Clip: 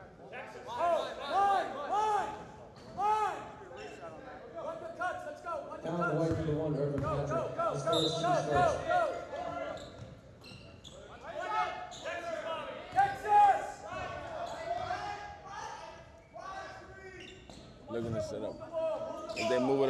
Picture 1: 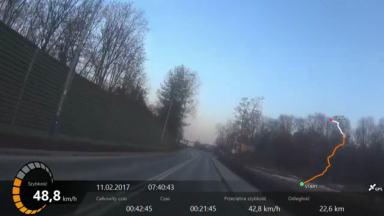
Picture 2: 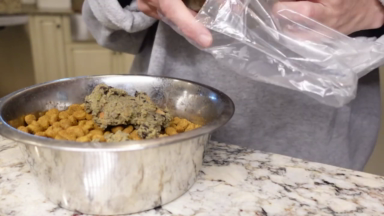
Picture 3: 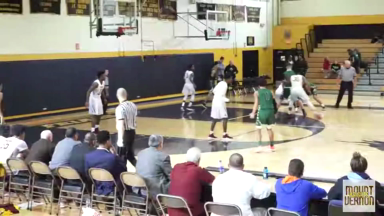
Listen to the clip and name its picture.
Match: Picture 3